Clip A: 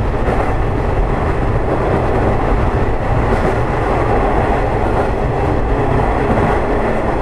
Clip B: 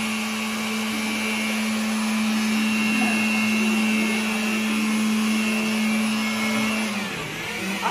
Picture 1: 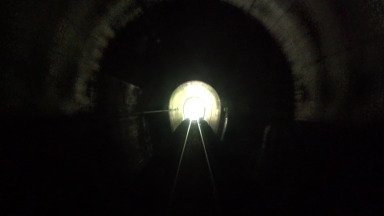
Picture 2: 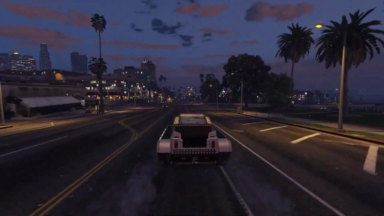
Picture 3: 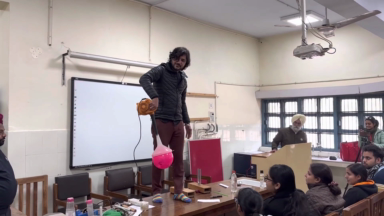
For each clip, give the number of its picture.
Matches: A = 1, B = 3